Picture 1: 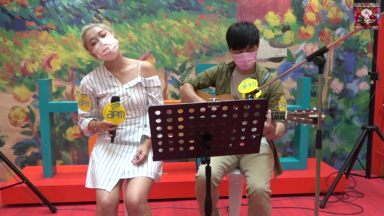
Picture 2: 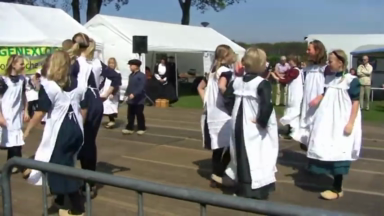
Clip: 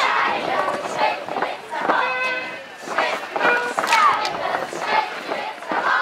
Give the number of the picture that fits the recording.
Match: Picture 2